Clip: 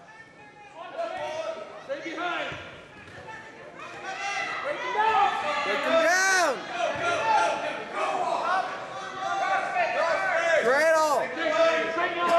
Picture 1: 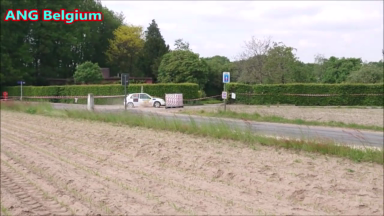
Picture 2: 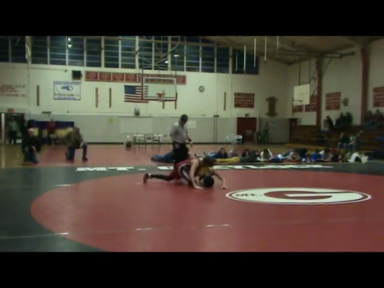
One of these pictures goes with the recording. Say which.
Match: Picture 2